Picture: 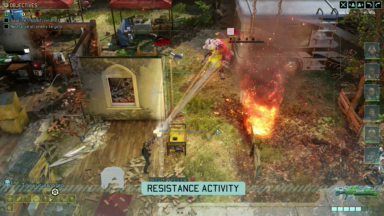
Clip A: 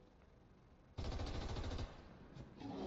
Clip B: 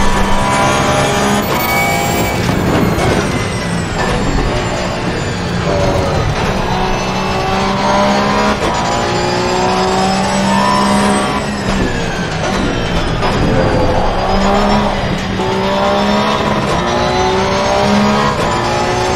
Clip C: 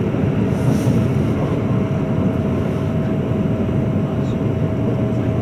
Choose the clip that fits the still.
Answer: A